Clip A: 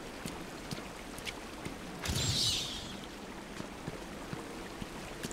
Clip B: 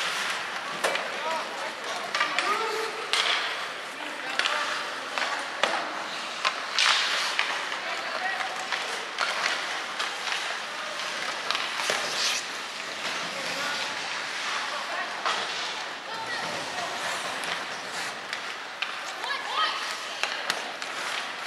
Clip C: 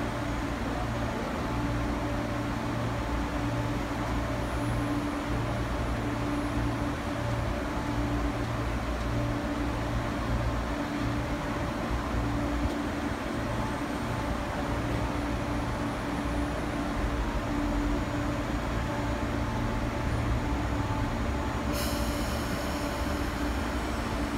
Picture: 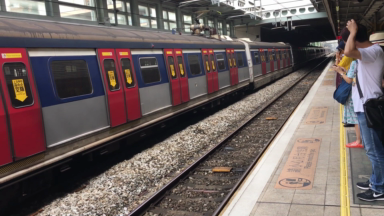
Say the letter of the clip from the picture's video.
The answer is C